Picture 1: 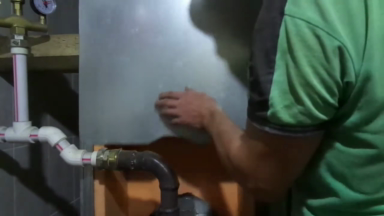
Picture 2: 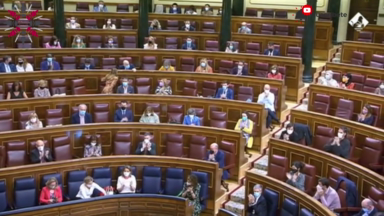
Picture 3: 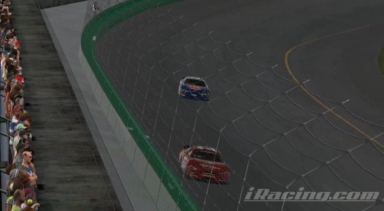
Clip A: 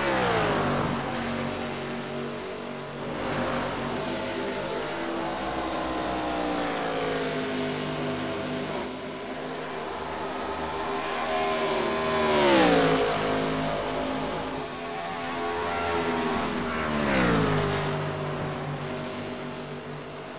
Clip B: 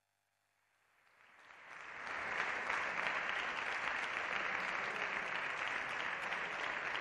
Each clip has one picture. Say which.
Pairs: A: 3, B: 2